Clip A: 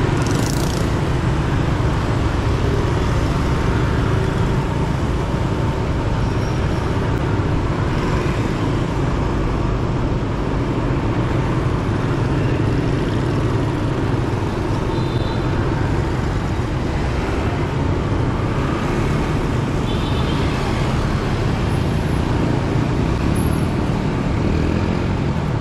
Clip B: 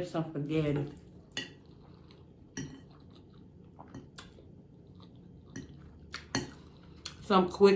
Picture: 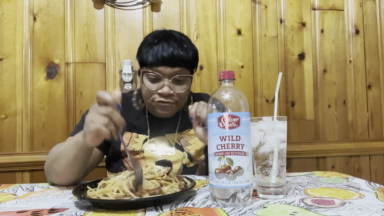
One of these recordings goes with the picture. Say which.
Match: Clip B